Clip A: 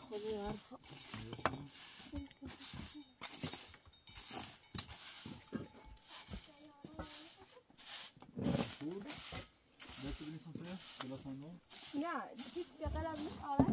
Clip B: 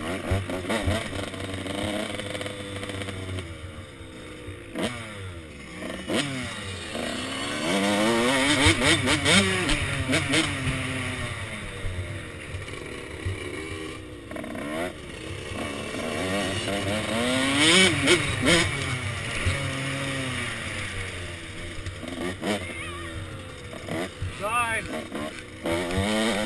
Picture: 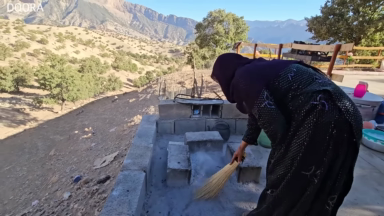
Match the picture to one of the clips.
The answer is A